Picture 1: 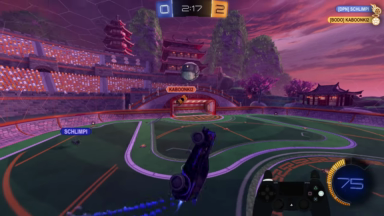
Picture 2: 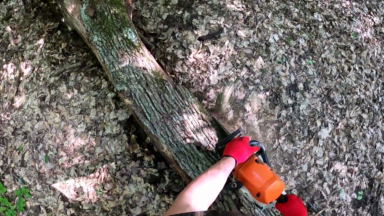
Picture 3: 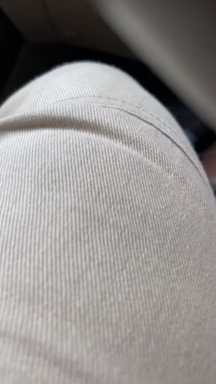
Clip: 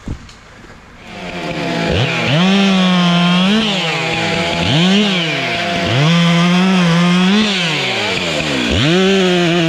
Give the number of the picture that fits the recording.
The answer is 2